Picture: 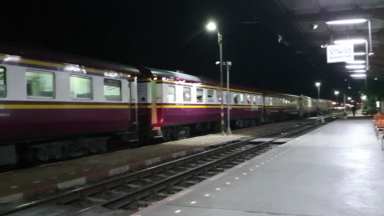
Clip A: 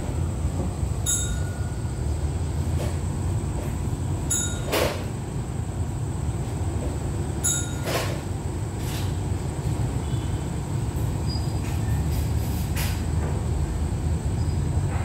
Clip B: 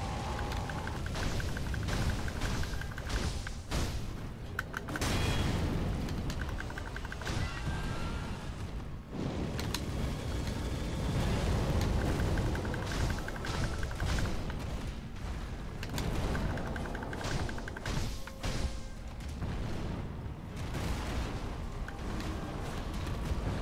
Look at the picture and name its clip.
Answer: A